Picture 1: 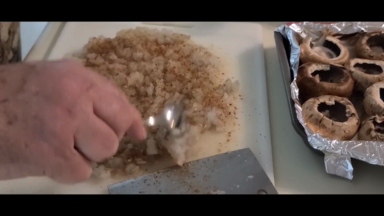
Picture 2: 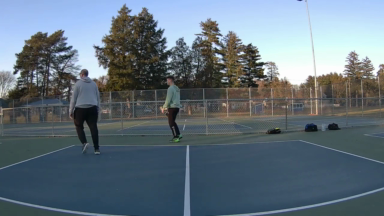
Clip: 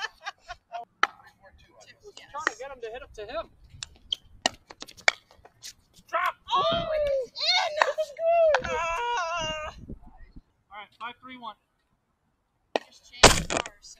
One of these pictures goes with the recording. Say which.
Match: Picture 2